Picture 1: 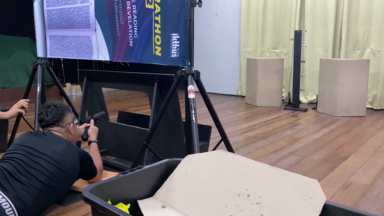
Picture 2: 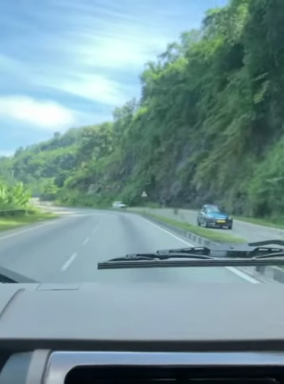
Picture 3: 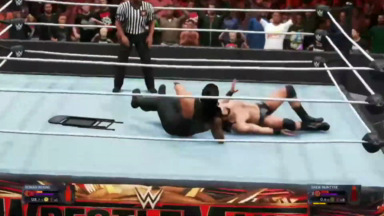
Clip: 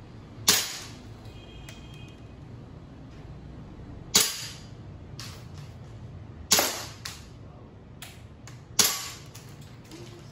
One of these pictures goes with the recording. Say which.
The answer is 1